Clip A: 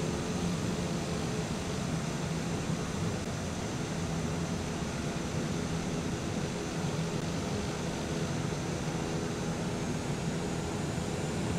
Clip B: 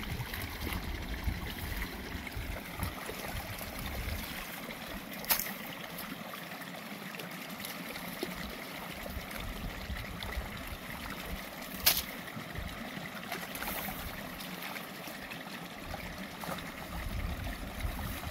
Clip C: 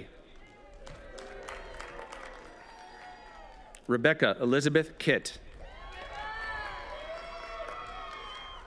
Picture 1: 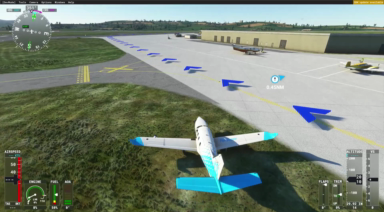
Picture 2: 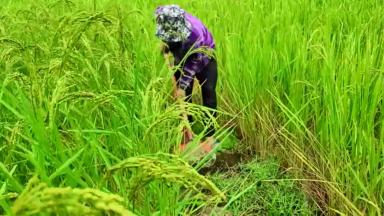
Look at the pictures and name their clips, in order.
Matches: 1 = A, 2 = B